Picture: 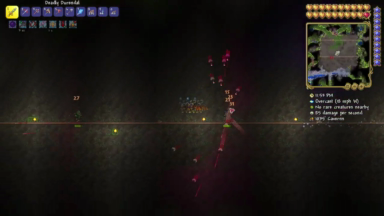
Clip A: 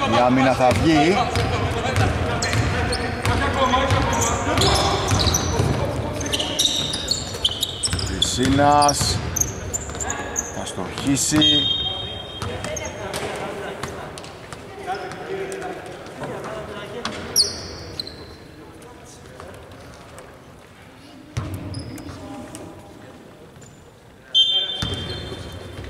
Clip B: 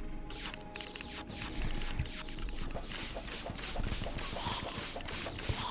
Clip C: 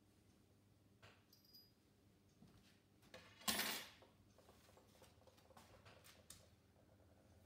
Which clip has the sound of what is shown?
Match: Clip B